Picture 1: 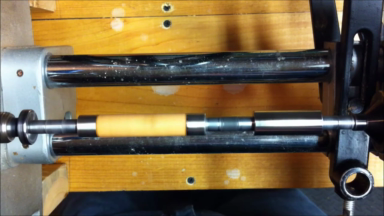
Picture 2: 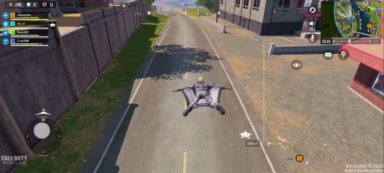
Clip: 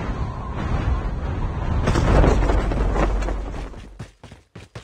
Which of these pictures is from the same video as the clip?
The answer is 2